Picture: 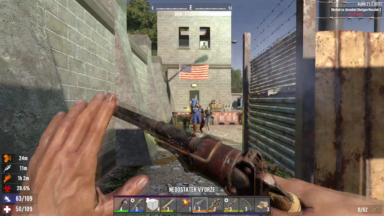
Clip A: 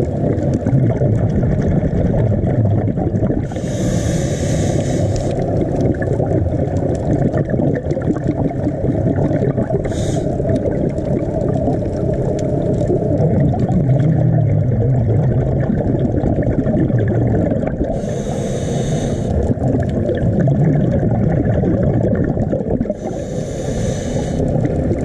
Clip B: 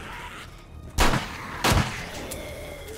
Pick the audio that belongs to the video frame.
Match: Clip B